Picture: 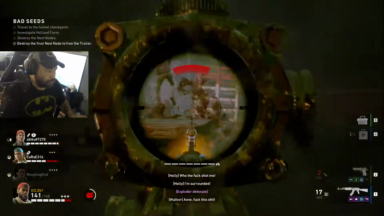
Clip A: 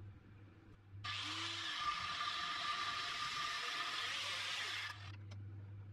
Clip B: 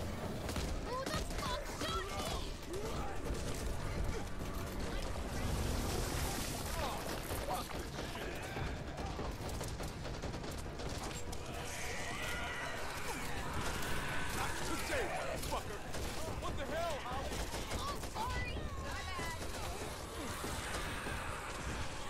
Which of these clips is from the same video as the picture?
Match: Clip B